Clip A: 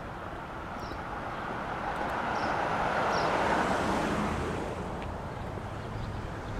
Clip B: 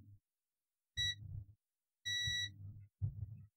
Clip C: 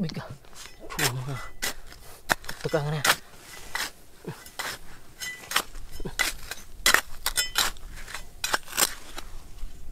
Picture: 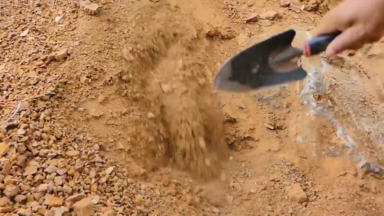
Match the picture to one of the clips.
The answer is C